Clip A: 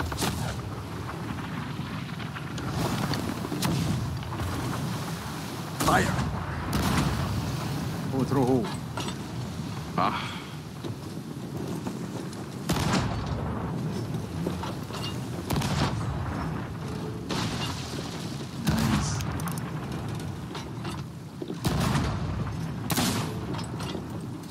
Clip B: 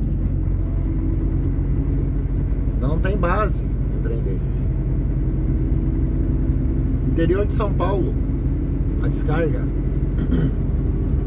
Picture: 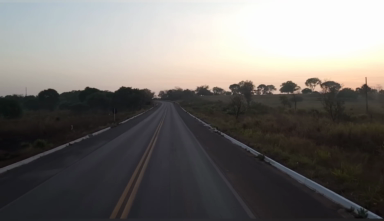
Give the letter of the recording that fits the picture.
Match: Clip B